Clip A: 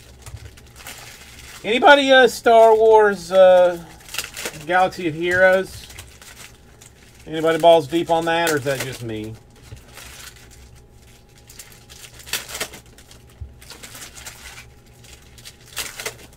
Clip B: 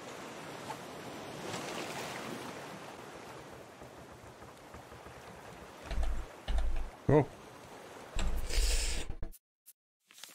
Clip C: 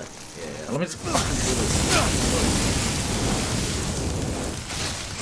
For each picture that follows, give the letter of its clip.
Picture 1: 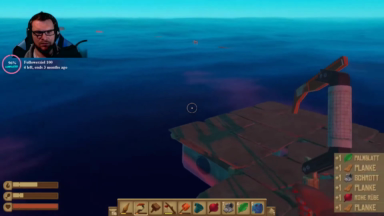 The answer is B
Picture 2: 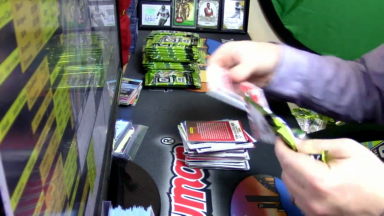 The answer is A